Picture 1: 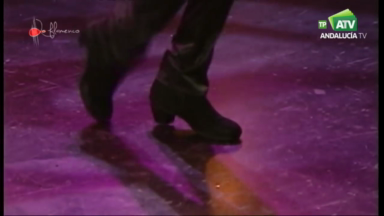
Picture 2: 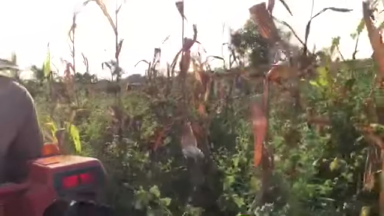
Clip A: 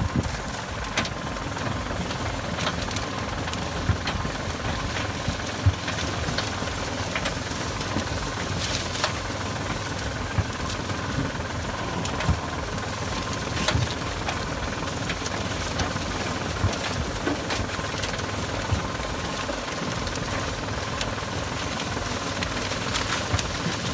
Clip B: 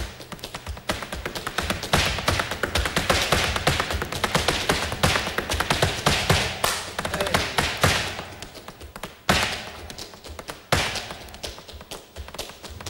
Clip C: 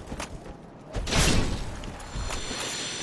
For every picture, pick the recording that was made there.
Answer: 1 B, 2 A